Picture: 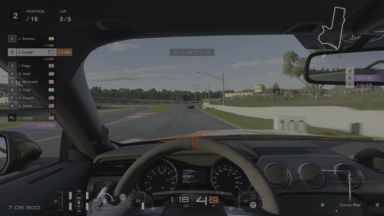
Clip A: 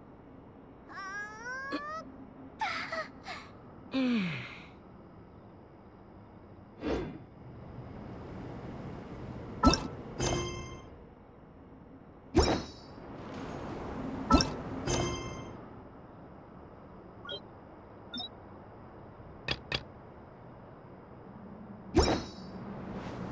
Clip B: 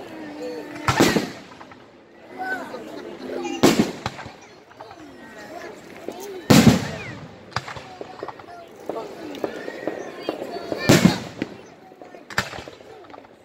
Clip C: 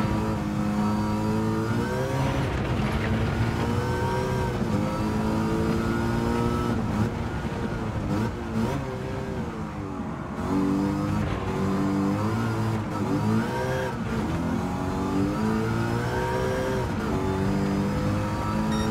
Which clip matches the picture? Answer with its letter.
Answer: C